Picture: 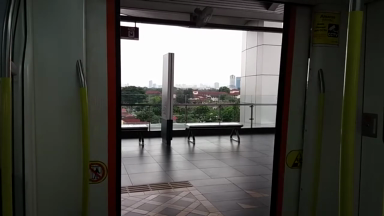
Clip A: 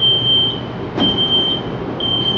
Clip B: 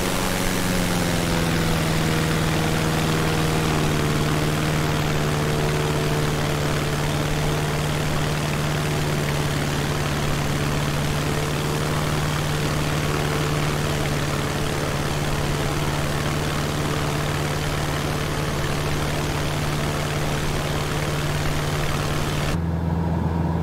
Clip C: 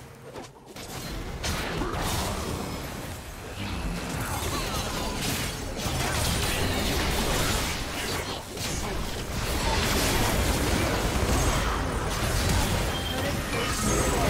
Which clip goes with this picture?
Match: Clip A